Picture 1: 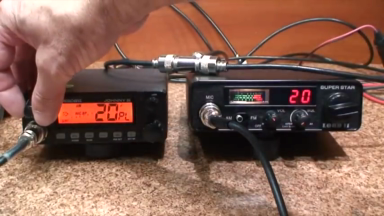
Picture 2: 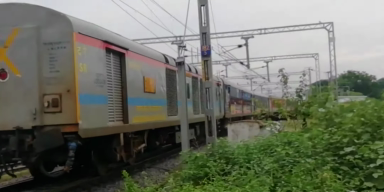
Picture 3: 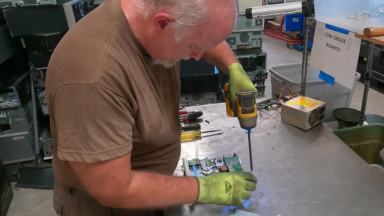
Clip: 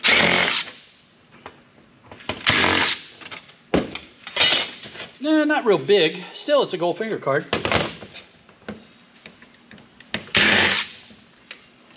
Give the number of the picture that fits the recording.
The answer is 3